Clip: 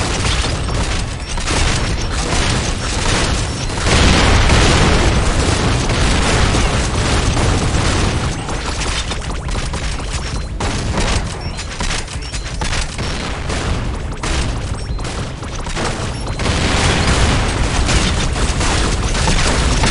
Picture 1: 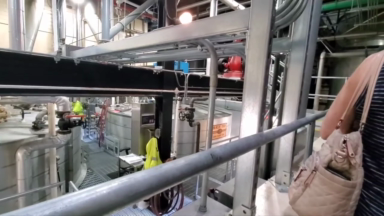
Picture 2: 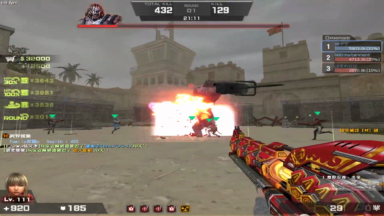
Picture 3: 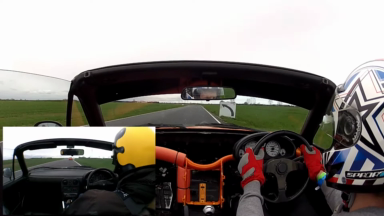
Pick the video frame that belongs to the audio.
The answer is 2